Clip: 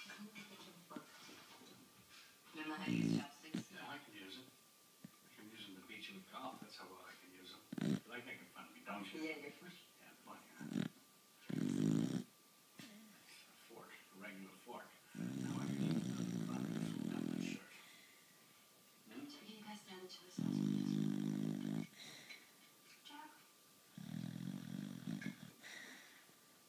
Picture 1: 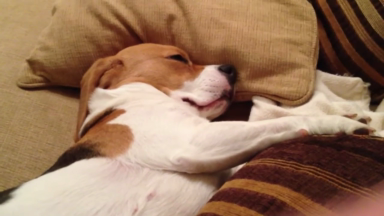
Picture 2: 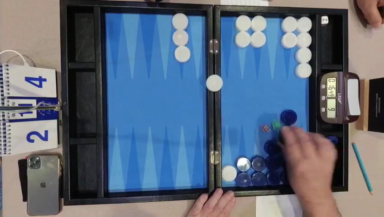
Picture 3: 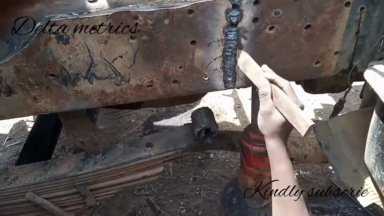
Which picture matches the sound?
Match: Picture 1